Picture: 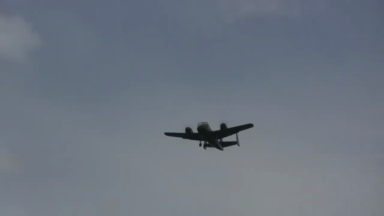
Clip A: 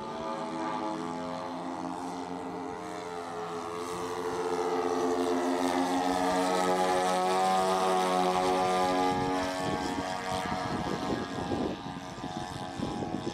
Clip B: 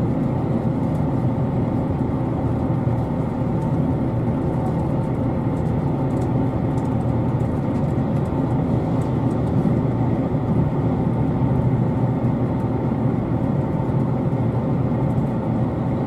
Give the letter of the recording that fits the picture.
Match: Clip A